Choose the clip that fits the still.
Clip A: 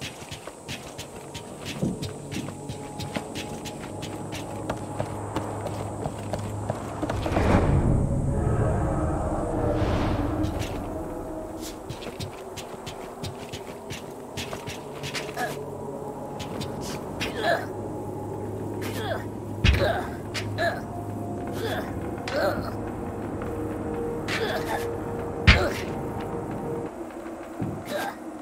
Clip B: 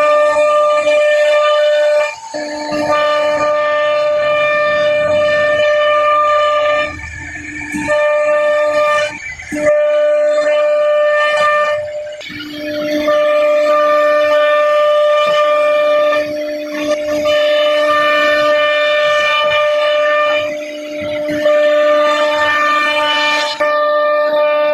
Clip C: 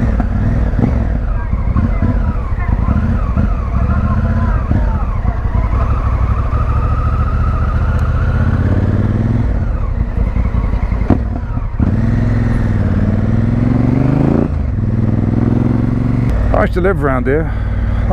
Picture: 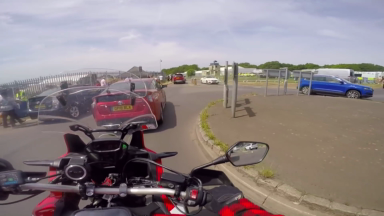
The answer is C